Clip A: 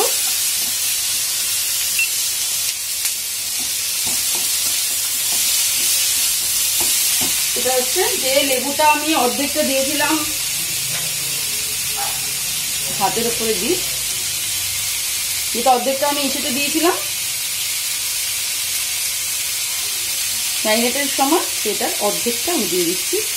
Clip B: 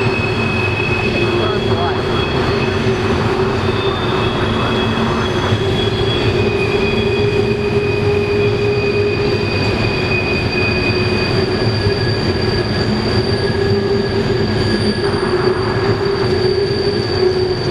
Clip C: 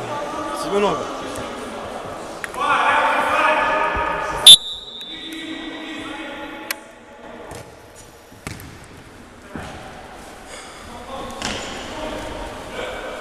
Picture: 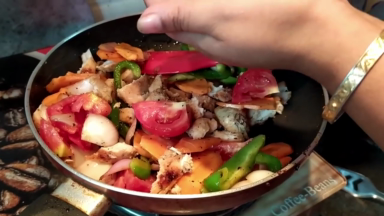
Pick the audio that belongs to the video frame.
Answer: A